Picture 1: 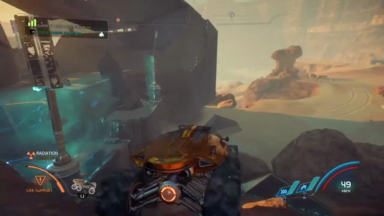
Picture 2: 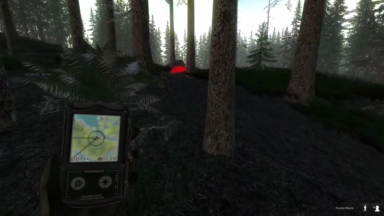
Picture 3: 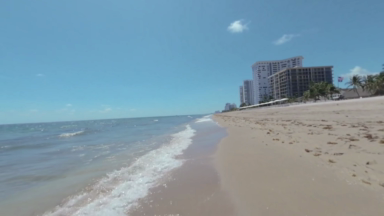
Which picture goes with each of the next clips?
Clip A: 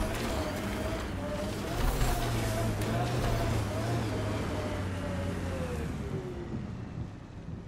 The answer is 1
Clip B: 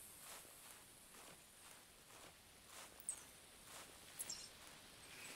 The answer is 2